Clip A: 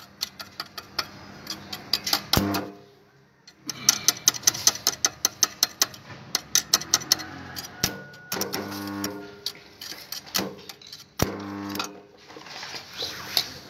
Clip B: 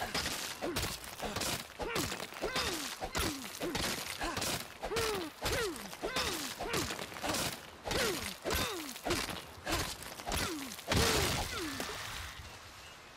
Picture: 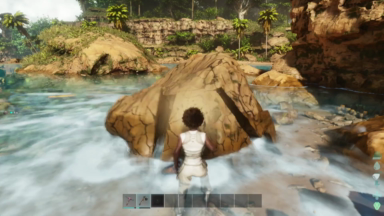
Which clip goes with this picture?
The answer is B